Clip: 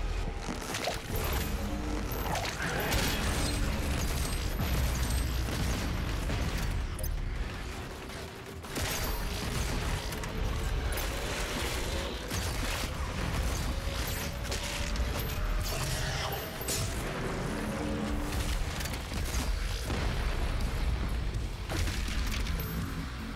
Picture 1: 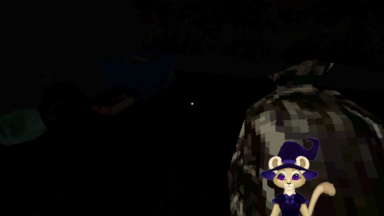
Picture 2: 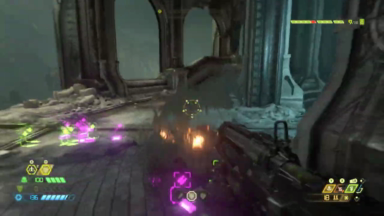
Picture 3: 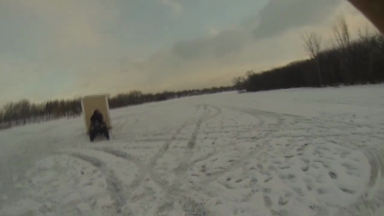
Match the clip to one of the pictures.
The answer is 2